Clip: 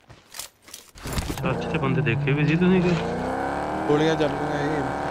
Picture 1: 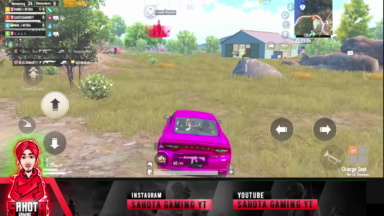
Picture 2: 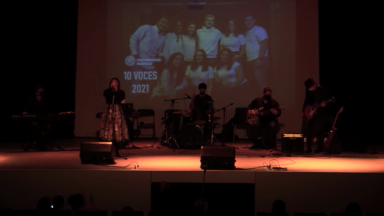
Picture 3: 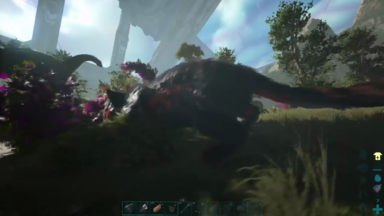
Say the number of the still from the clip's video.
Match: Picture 1